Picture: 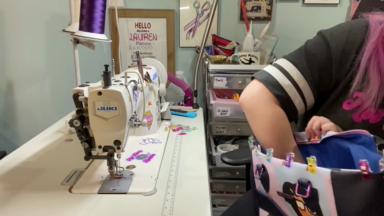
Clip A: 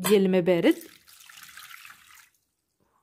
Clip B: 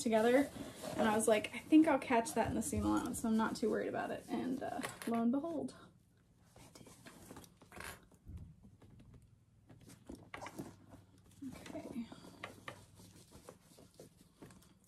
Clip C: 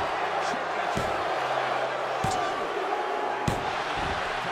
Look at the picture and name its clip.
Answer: B